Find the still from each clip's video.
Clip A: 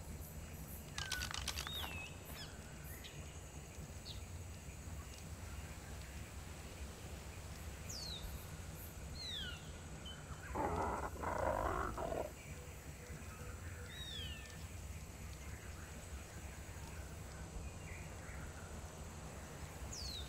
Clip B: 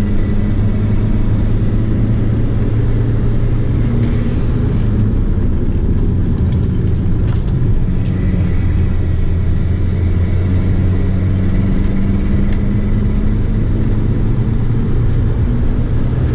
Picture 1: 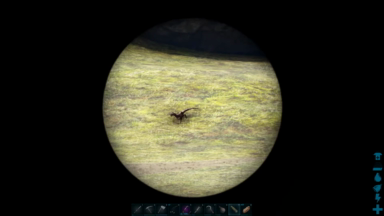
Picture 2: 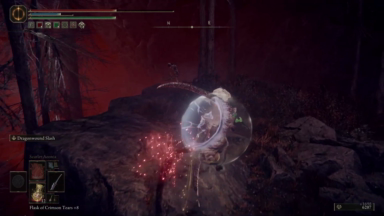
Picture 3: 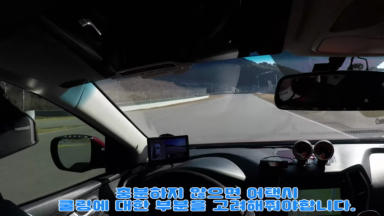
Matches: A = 1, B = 3